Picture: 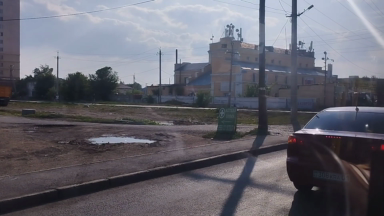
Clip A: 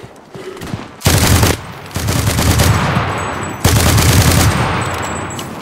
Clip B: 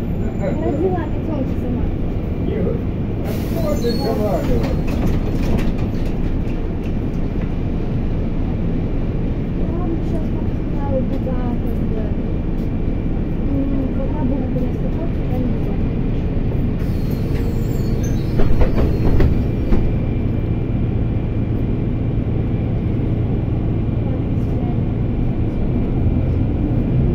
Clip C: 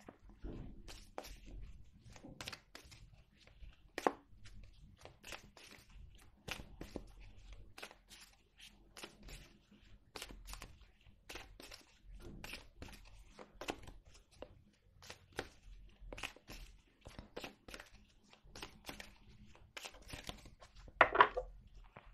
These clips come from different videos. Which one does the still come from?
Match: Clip B